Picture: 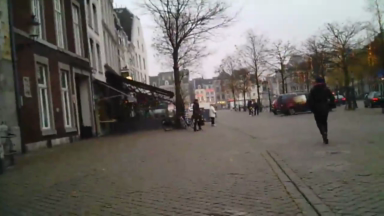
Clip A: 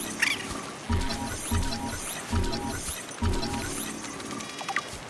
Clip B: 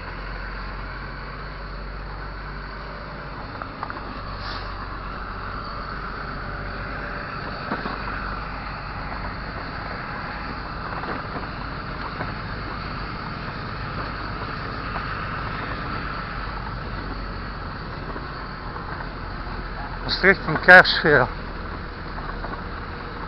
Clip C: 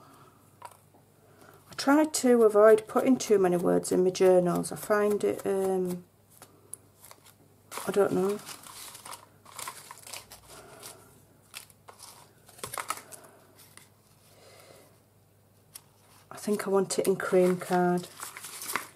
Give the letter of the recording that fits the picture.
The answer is B